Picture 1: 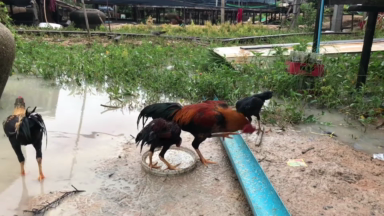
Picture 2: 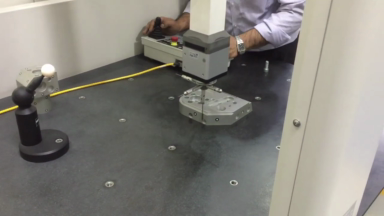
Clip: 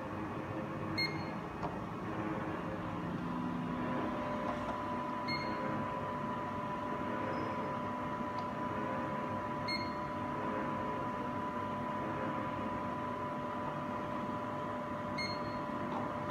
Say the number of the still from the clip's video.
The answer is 2